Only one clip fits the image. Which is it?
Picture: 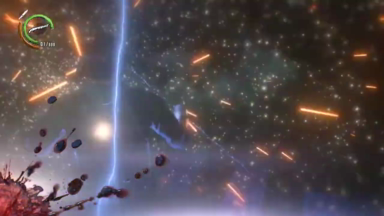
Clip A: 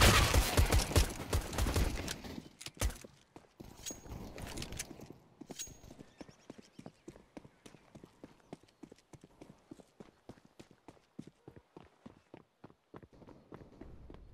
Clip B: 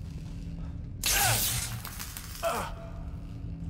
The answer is B